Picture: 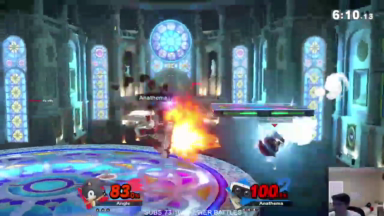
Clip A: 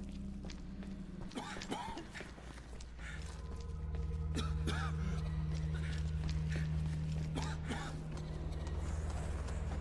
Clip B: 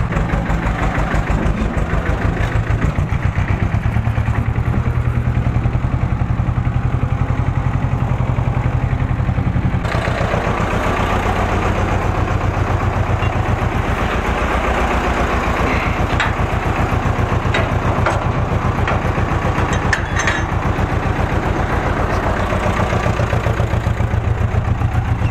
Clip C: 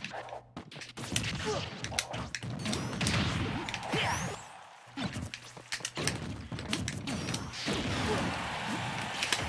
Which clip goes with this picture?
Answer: C